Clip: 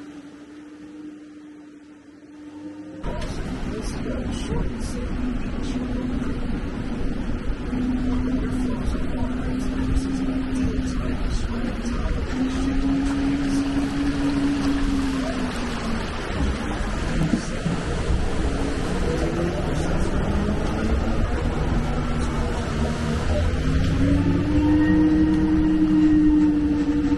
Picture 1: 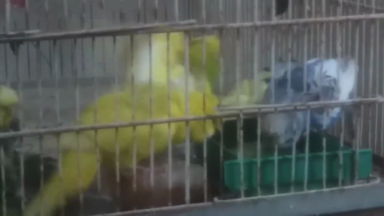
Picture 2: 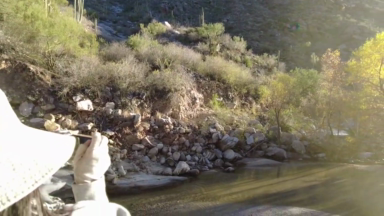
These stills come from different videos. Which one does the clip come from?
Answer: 2